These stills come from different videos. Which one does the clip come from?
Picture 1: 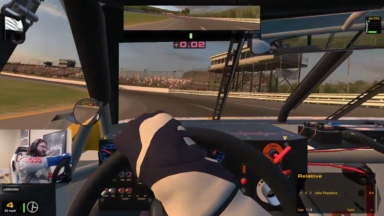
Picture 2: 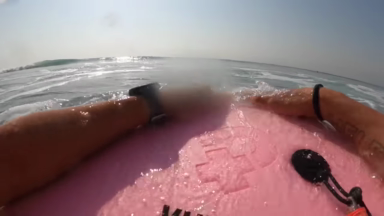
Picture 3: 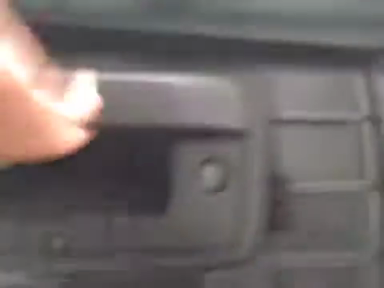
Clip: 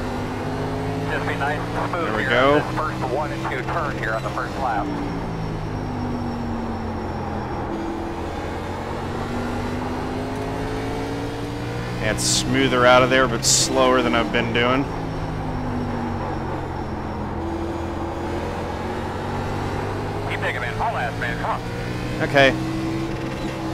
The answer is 1